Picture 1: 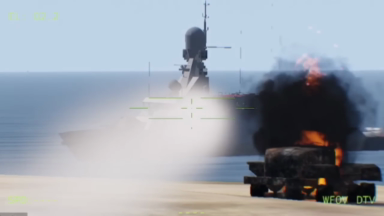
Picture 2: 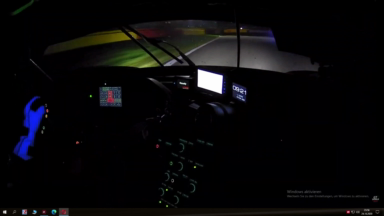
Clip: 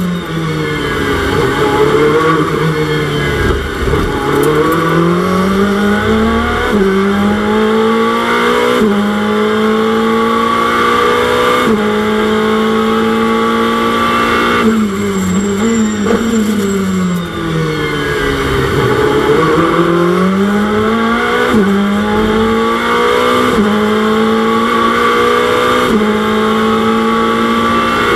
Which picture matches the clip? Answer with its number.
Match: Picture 2